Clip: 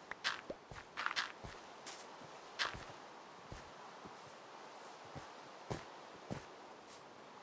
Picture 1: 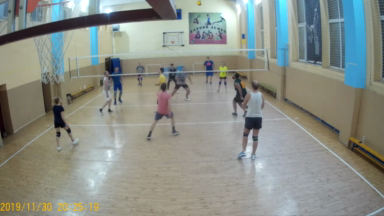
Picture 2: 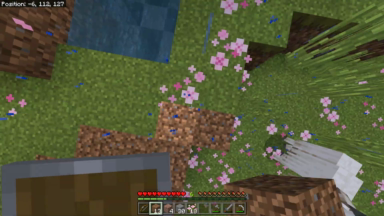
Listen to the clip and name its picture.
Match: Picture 2